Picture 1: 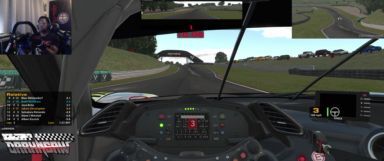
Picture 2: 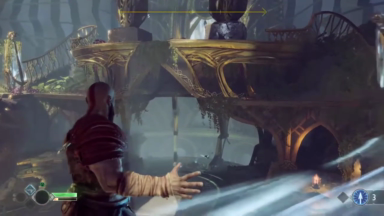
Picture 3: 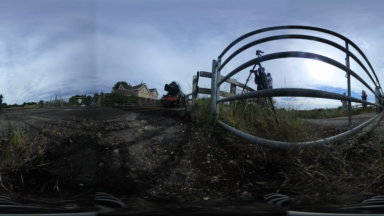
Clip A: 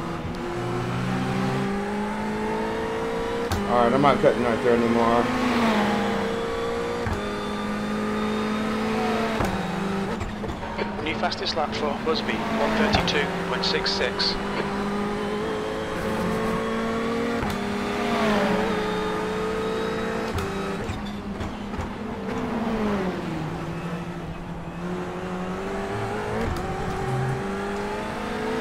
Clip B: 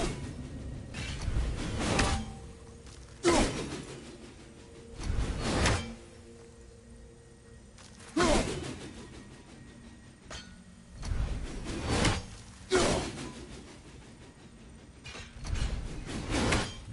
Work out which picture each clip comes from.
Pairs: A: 1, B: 2